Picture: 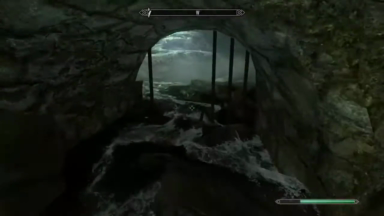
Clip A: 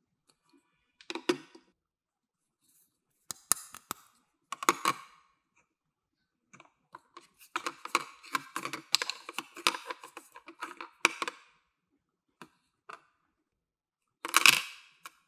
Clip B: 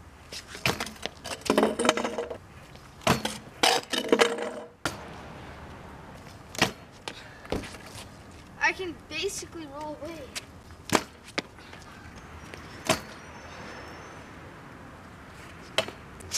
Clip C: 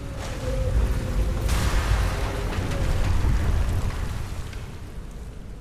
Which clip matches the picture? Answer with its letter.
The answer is C